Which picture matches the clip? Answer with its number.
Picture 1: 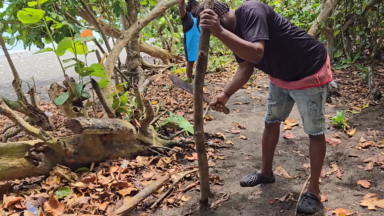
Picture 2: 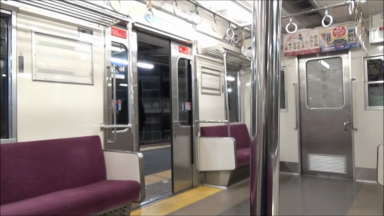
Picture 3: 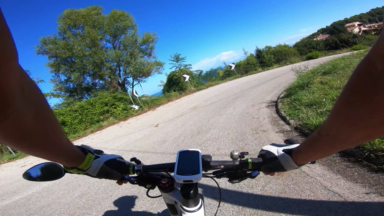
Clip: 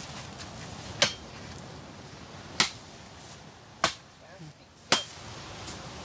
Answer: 1